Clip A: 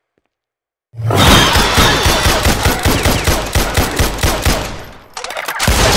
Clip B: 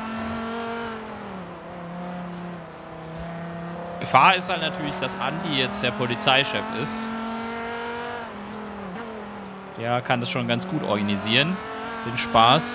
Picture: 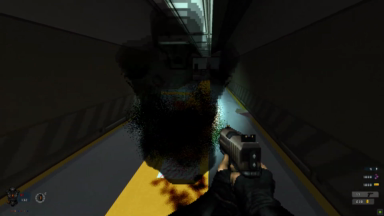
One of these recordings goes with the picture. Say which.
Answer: A